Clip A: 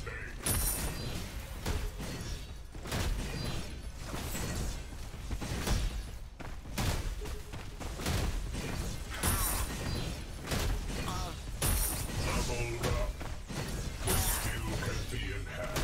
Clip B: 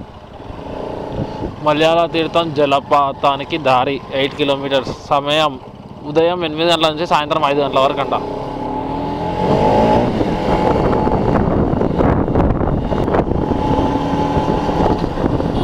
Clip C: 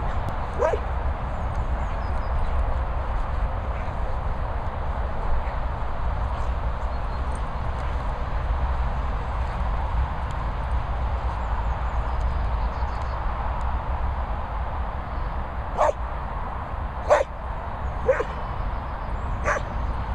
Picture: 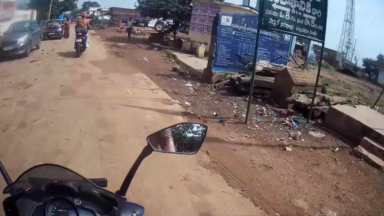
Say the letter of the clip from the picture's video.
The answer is B